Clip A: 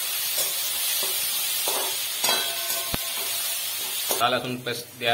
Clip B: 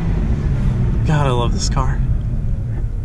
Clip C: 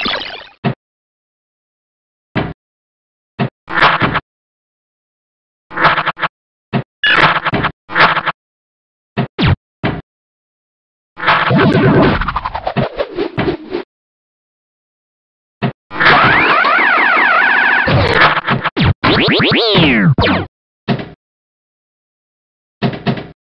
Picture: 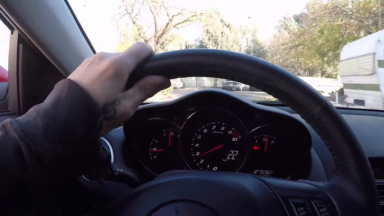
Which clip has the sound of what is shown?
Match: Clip B